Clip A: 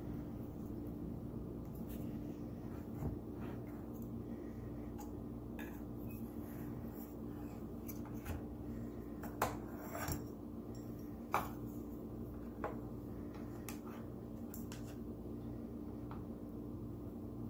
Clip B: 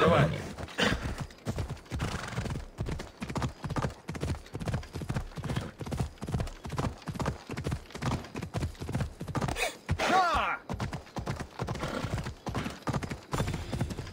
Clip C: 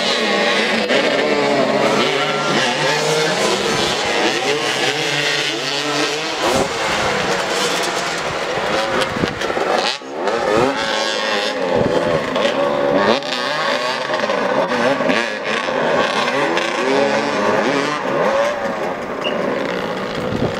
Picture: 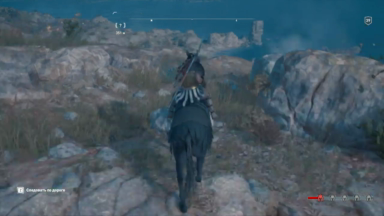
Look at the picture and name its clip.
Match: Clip B